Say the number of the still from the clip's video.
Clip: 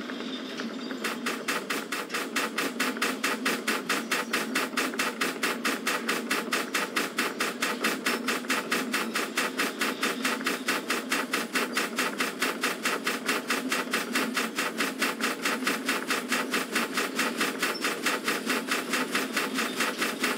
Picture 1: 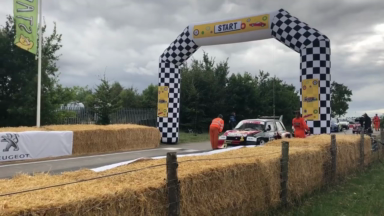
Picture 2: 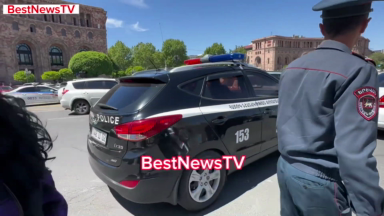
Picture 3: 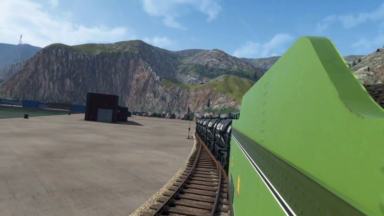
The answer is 3